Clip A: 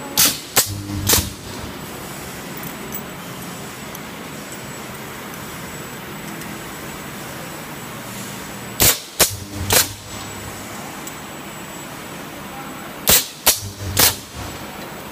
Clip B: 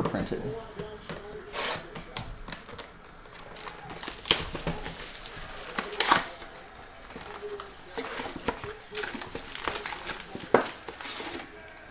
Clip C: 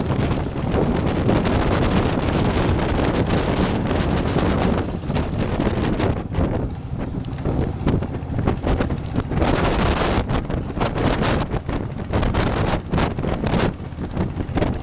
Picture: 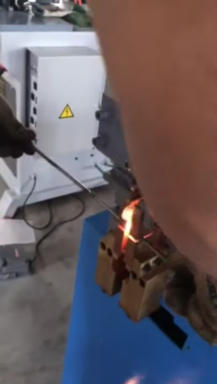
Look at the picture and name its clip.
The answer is A